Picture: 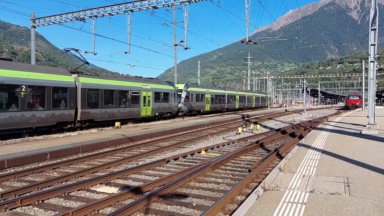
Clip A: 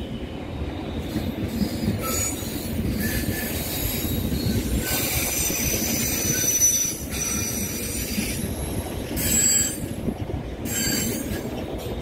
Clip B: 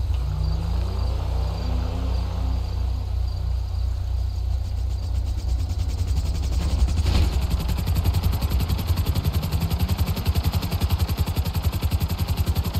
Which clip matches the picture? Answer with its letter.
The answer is A